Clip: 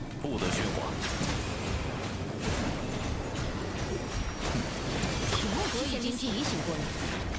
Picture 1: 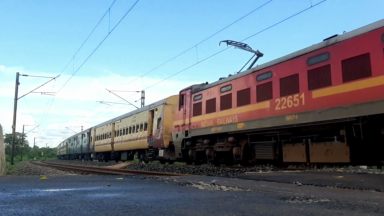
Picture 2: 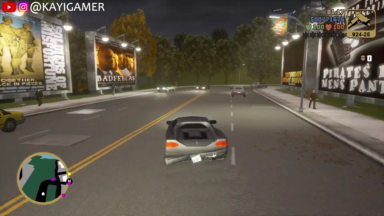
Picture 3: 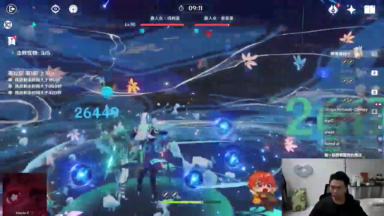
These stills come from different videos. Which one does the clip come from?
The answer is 3